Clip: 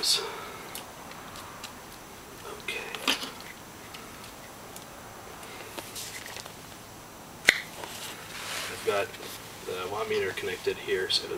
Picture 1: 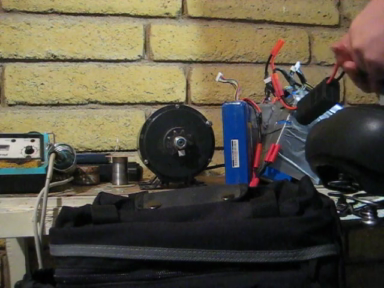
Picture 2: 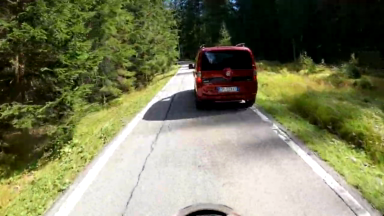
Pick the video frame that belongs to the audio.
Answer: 1